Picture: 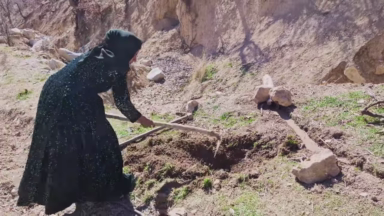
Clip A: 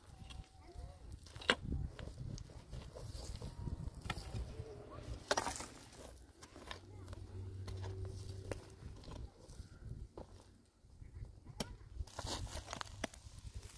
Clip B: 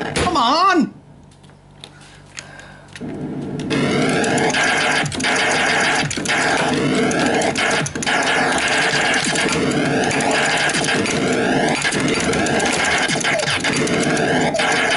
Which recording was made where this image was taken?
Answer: A